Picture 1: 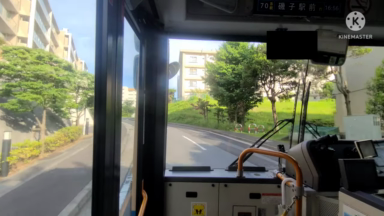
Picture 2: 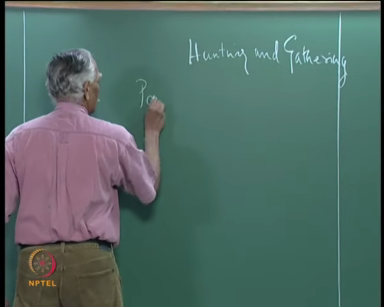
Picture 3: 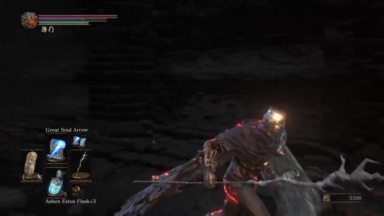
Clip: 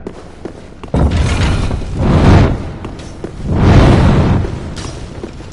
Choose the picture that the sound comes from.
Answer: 3